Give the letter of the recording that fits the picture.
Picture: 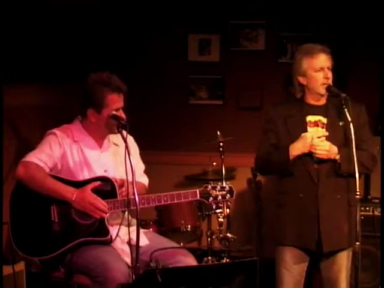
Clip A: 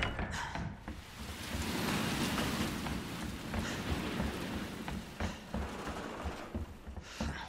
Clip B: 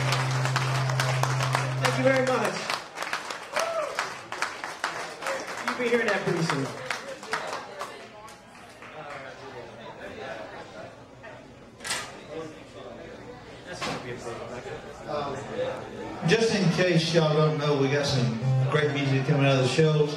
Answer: B